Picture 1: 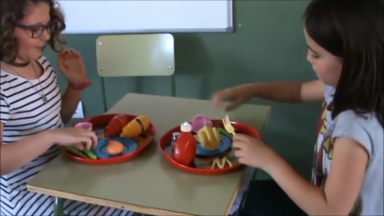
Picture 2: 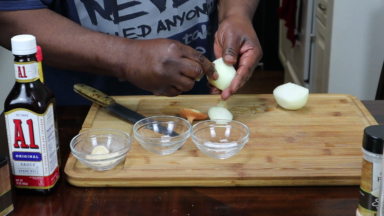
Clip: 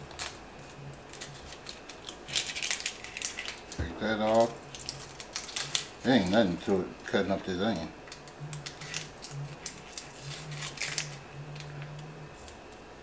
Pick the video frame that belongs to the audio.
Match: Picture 2